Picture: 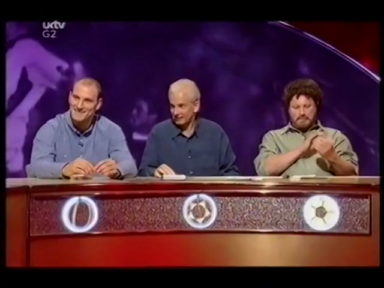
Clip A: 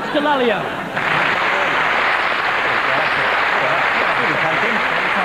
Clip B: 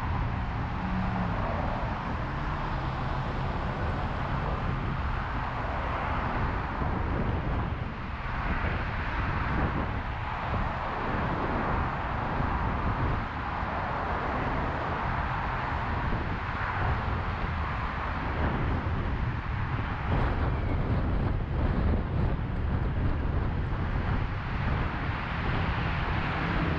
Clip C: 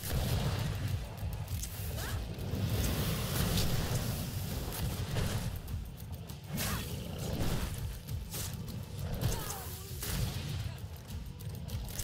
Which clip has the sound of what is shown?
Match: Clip A